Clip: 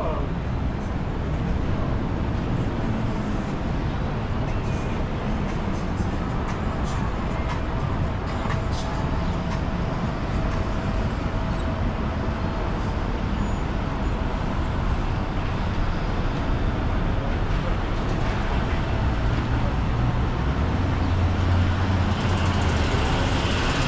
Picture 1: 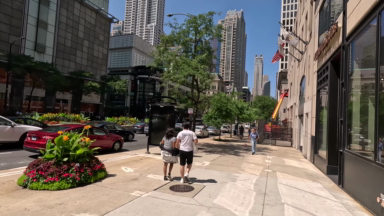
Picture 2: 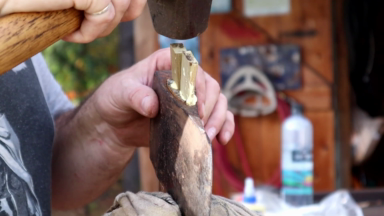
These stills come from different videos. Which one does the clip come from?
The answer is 1